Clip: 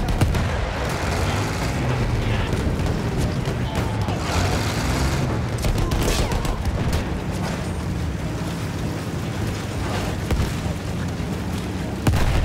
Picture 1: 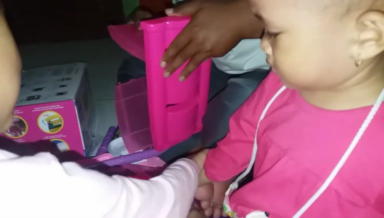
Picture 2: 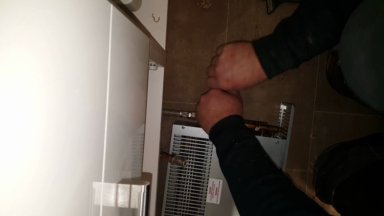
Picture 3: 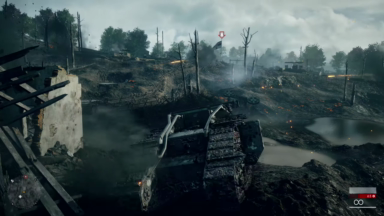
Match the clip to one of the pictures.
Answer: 3